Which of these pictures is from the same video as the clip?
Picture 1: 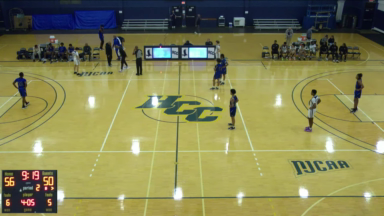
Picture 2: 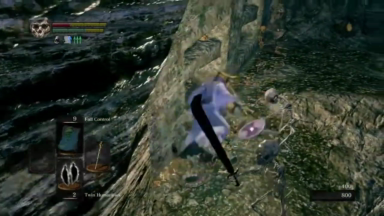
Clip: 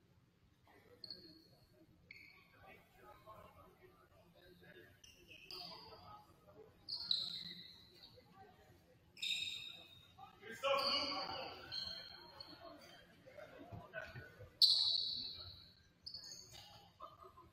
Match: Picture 1